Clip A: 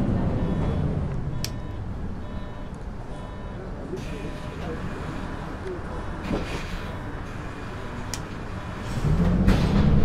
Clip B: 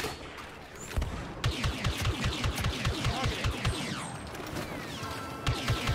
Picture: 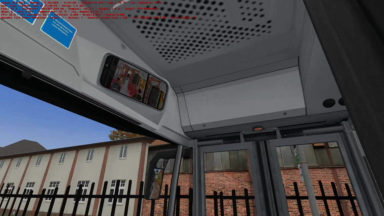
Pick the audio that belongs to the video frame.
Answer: A